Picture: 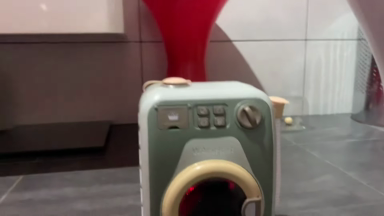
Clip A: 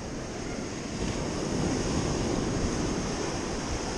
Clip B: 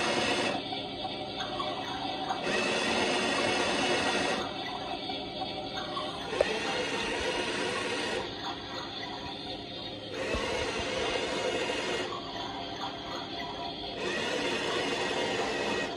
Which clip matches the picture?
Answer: B